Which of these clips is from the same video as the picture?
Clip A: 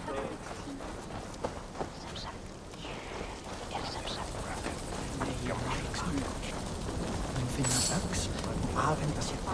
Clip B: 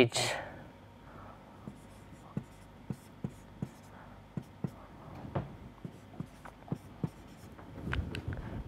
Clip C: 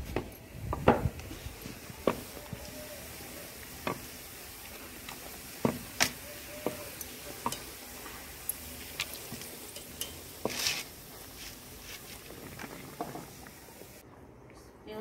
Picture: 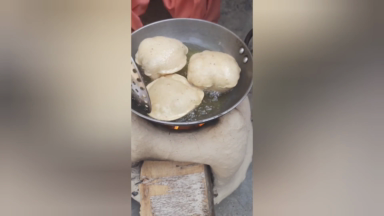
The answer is C